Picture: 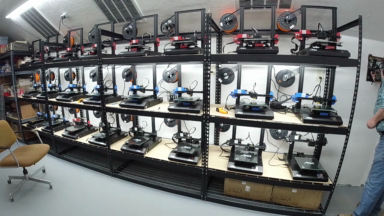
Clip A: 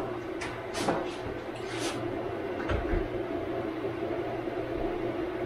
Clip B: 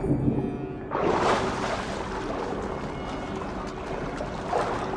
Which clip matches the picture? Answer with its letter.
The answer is A